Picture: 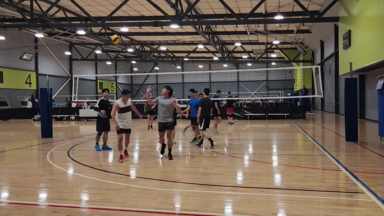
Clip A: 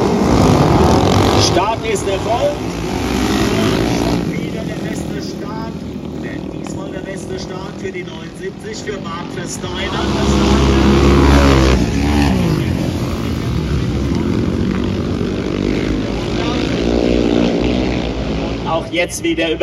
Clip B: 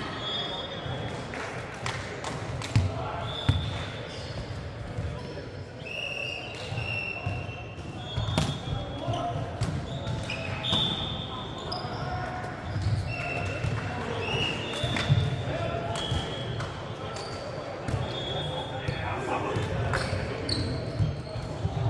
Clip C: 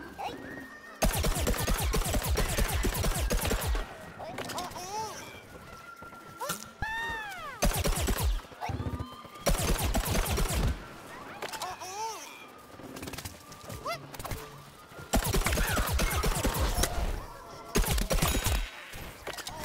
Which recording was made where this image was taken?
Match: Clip B